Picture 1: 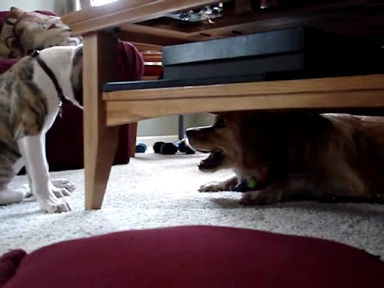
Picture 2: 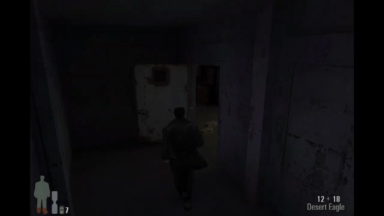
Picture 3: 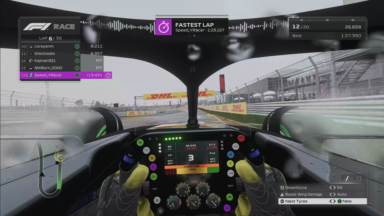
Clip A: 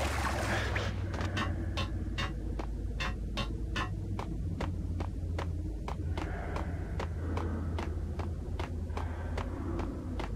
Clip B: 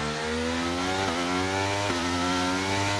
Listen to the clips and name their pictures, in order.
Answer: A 2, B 3